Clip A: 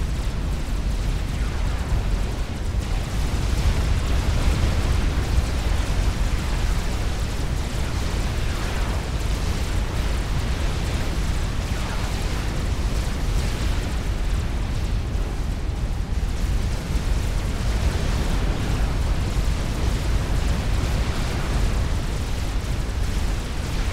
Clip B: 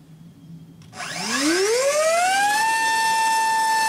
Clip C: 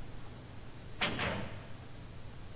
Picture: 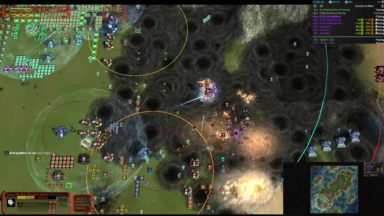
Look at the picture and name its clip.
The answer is A